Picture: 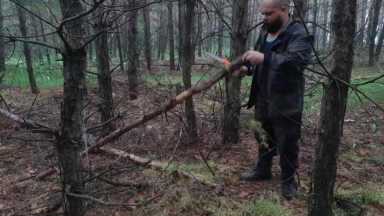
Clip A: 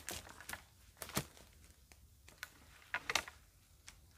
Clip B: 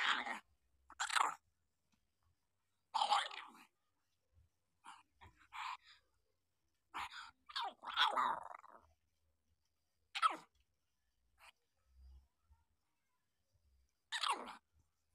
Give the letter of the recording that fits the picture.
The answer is A